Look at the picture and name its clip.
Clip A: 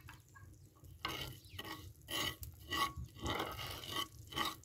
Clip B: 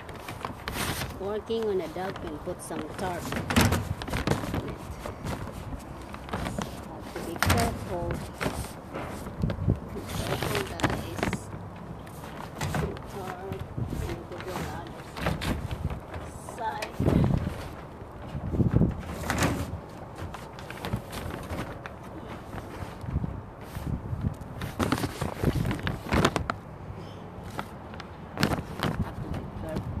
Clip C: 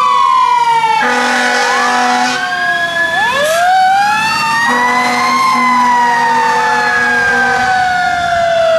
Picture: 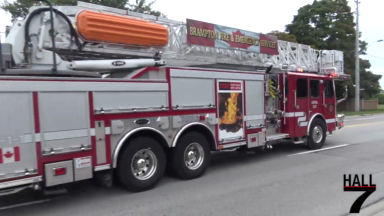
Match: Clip C